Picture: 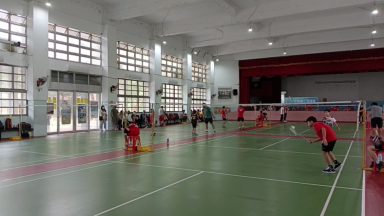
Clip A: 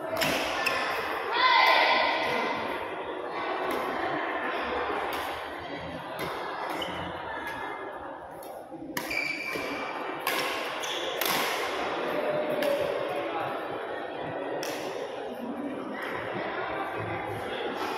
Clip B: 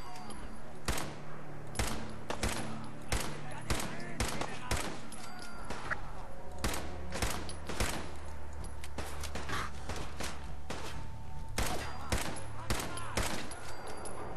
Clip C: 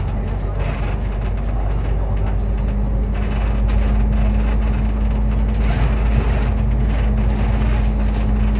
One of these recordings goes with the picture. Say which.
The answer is A